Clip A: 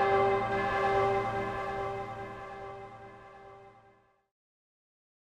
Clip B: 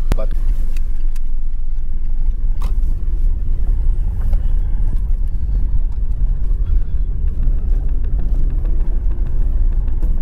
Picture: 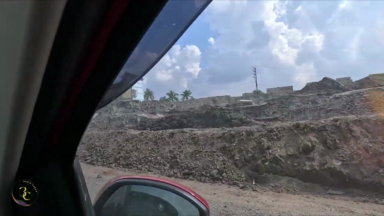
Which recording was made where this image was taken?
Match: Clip B